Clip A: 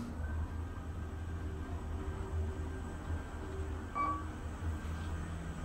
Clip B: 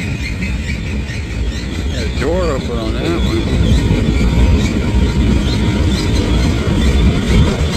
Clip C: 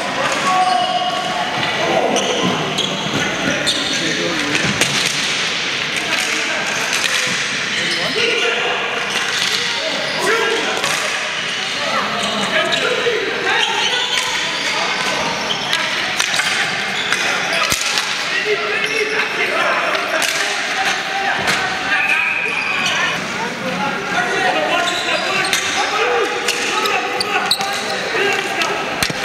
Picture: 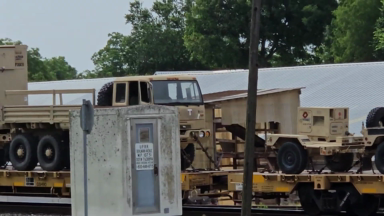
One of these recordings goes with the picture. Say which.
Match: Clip B